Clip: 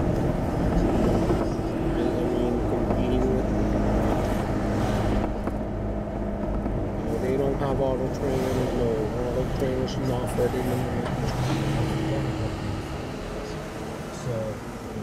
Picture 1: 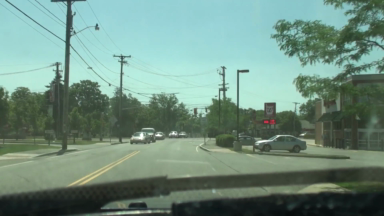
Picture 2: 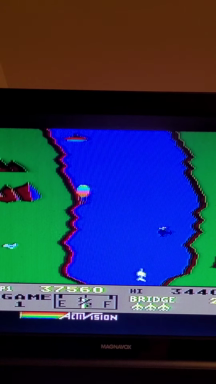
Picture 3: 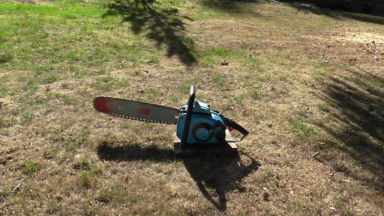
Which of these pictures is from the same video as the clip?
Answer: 1